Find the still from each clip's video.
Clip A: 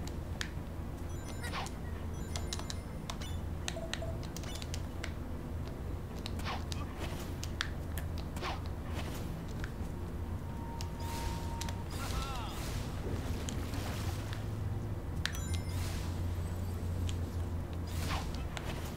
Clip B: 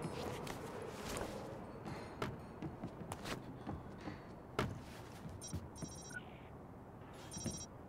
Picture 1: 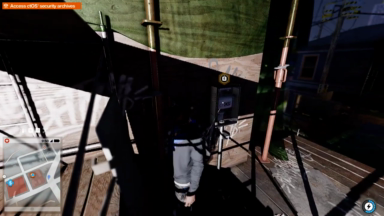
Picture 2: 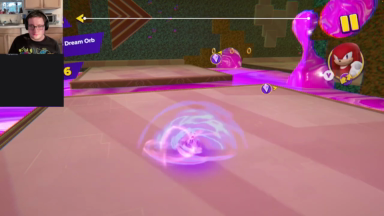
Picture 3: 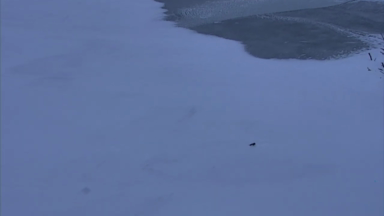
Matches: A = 2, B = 1